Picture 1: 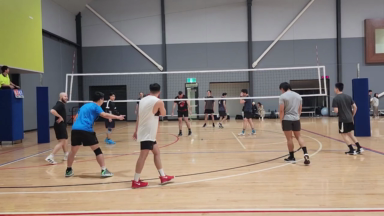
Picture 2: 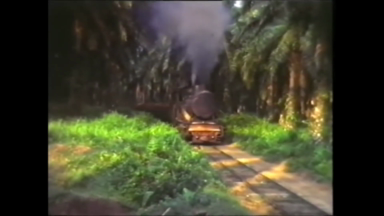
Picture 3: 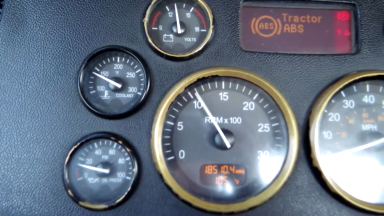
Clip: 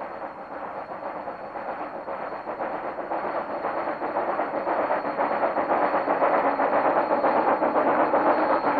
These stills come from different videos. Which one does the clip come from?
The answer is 2